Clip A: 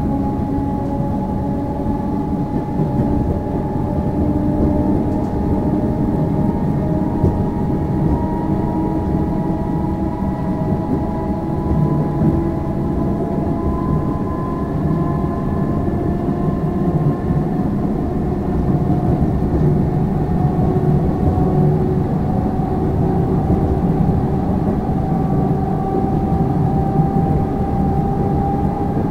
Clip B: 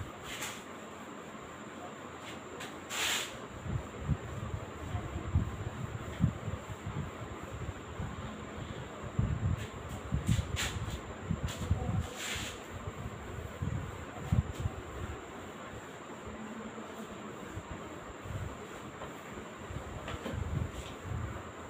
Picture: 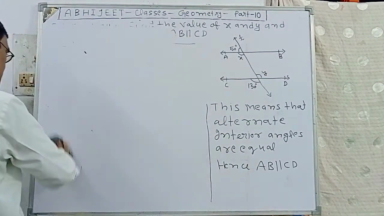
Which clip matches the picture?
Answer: B